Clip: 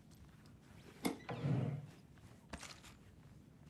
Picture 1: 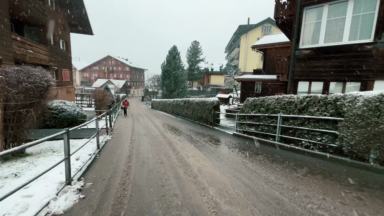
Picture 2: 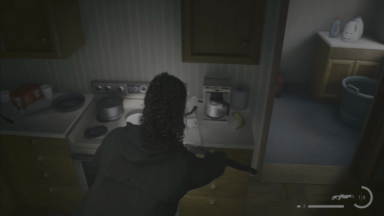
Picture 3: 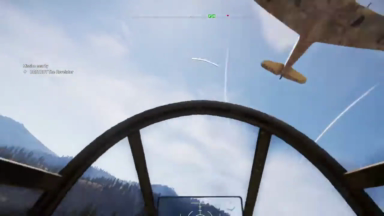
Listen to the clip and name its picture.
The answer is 2